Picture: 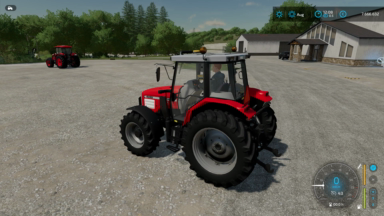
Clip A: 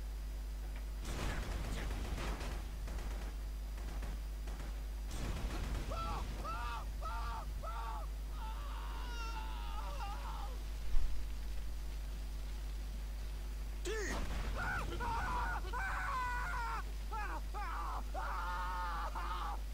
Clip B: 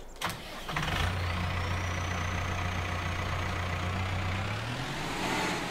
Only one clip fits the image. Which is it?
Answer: B